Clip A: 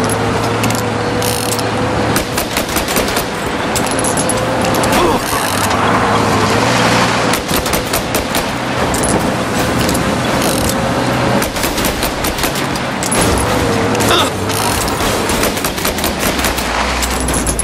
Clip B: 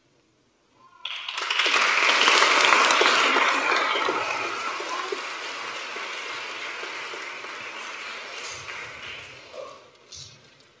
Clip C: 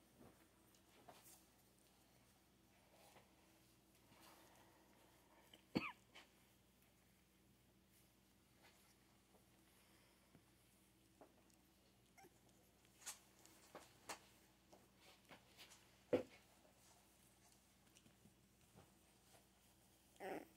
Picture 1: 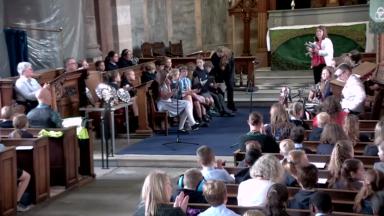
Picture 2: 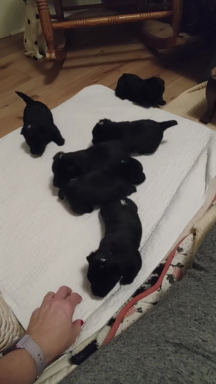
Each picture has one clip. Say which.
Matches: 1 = B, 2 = C